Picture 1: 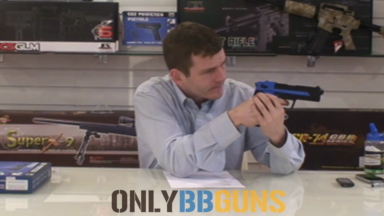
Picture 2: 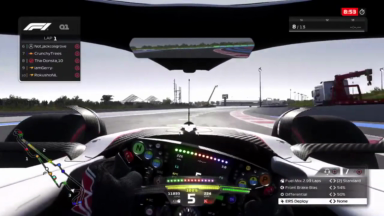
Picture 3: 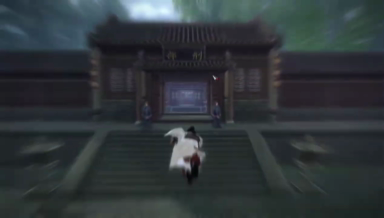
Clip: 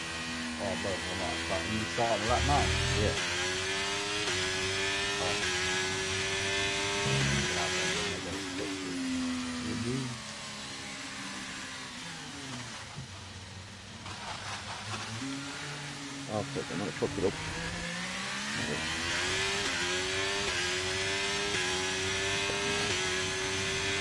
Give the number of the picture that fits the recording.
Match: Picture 2